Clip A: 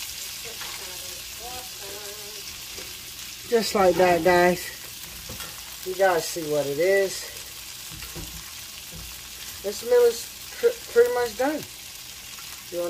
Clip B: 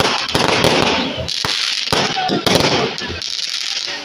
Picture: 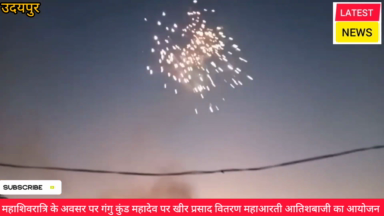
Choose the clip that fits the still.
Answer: B